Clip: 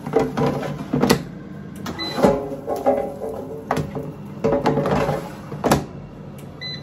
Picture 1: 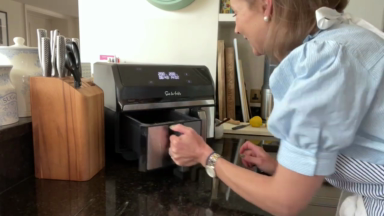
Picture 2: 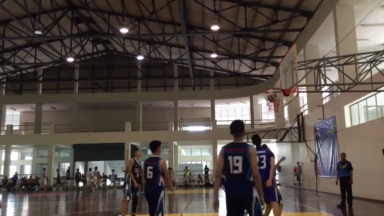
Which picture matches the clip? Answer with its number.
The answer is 1